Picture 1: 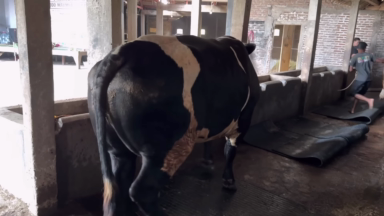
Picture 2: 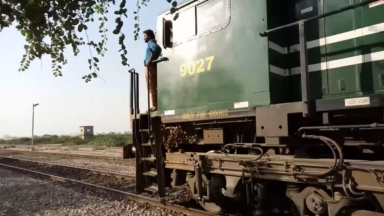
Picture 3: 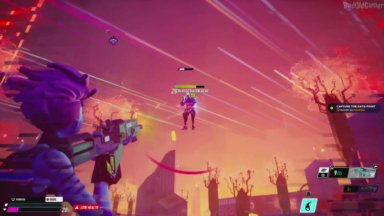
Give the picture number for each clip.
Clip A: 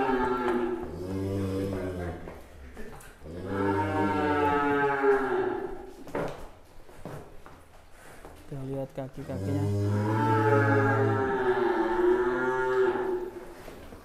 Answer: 1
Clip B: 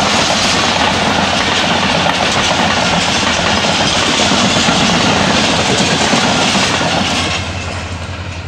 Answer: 2